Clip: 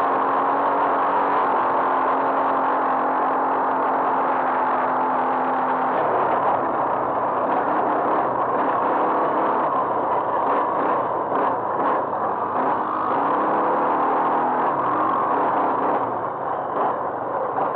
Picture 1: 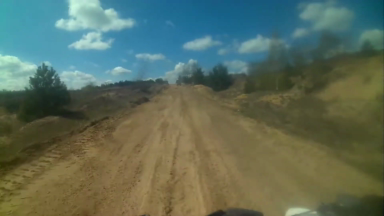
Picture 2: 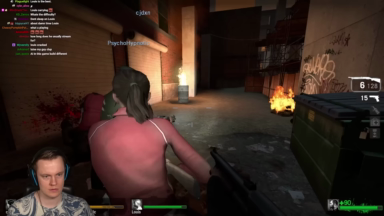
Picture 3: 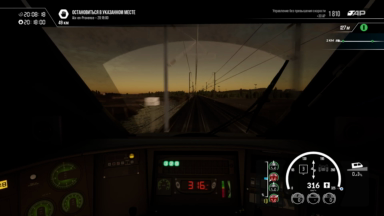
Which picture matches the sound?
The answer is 1